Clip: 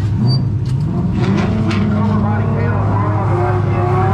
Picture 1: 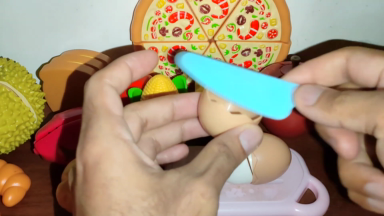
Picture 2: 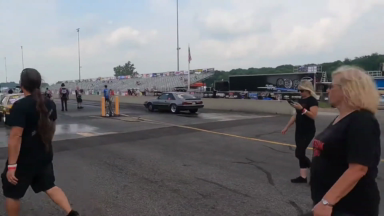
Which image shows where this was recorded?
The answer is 2